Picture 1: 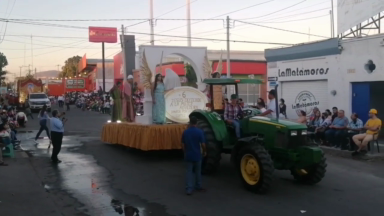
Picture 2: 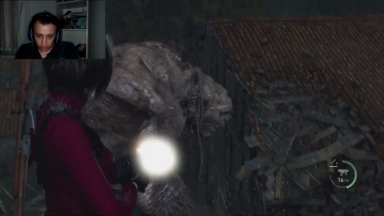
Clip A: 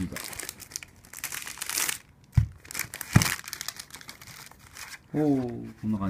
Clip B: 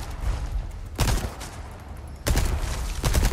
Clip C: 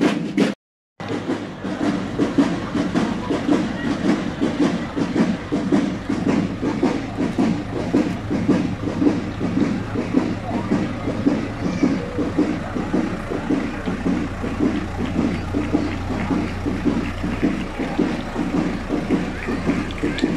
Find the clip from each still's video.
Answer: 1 C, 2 B